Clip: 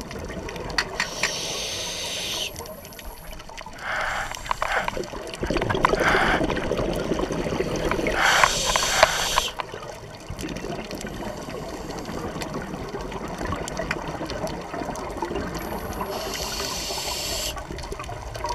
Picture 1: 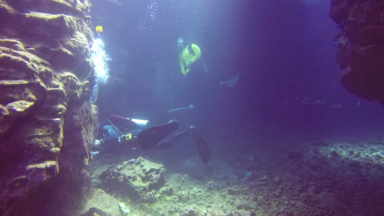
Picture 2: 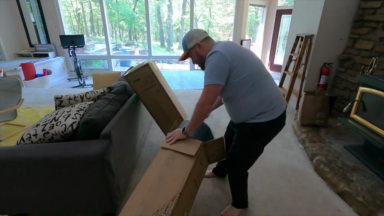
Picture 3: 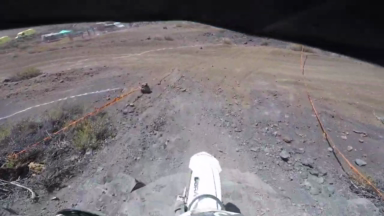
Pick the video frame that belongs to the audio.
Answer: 1